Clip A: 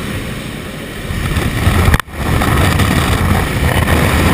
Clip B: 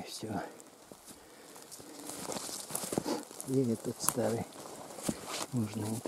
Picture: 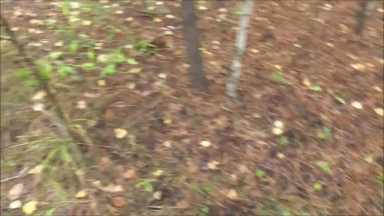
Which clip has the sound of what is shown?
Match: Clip B